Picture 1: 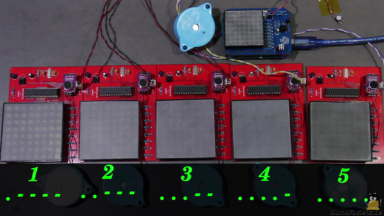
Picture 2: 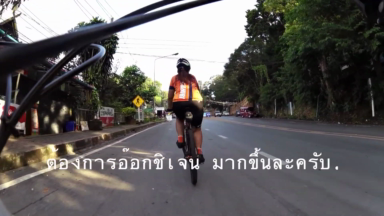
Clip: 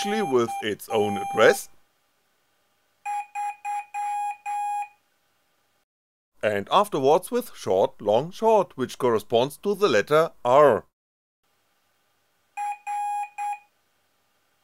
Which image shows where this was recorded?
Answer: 1